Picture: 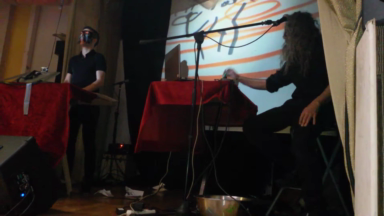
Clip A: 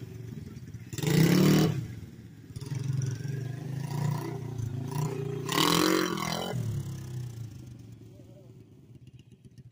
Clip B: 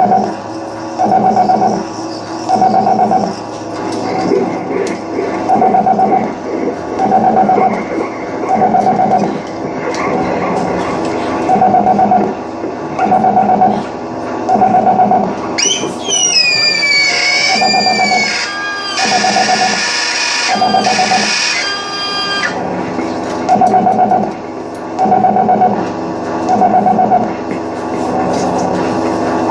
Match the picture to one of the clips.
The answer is B